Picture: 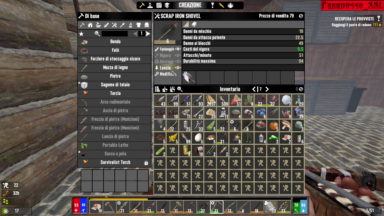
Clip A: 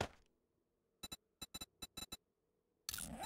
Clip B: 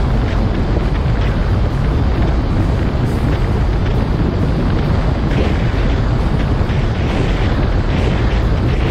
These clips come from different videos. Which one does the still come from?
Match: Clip A